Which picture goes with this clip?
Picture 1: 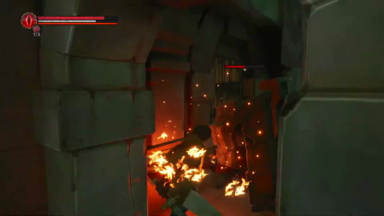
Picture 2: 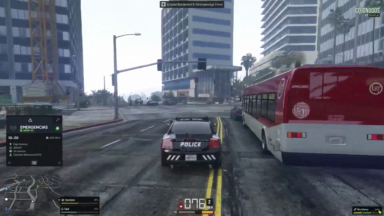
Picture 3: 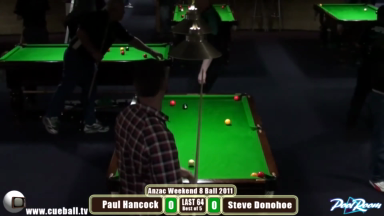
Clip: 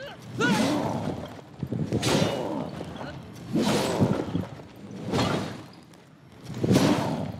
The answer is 1